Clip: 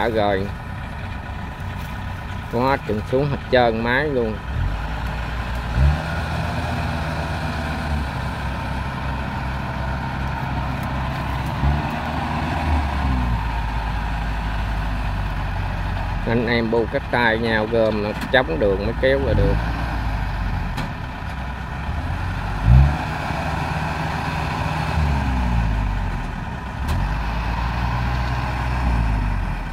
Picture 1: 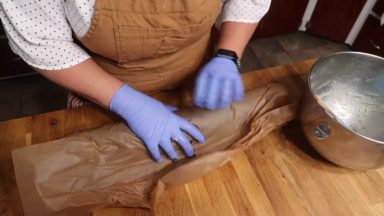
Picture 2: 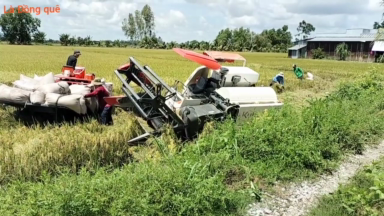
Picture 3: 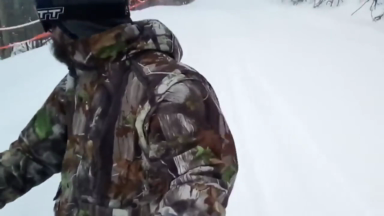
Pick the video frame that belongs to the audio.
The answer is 2